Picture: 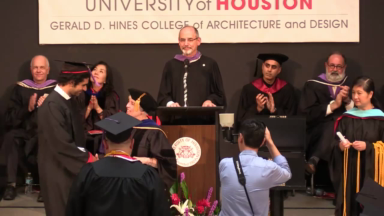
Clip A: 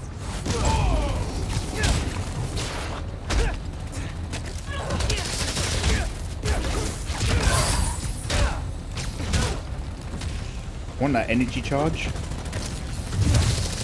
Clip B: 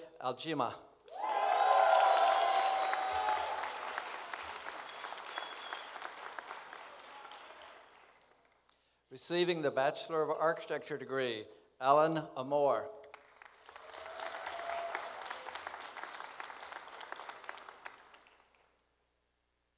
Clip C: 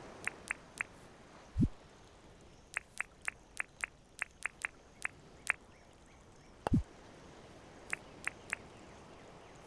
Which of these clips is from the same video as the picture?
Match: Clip B